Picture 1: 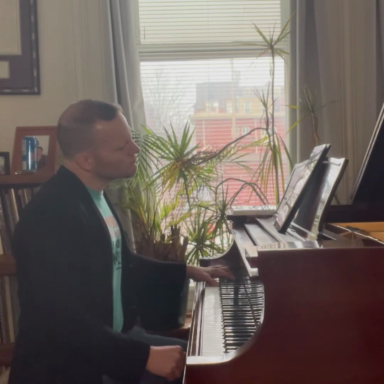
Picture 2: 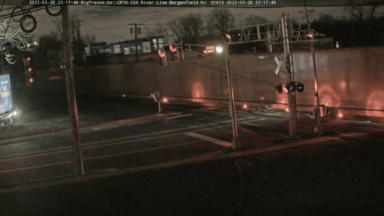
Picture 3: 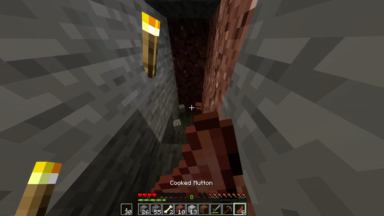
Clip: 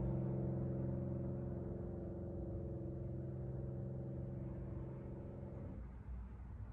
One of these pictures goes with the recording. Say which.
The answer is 1